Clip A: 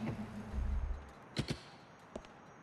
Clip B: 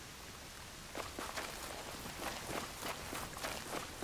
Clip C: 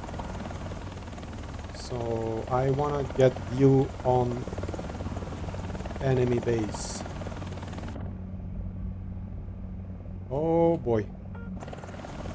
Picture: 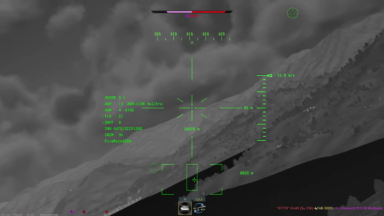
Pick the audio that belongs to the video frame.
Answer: C